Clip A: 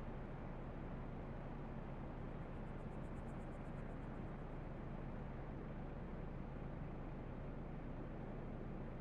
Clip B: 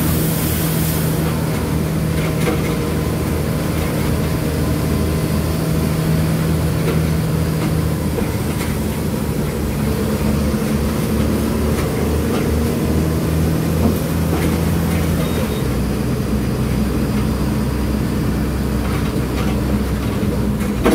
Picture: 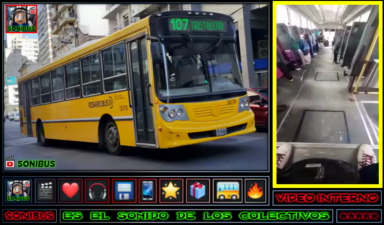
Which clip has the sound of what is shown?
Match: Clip B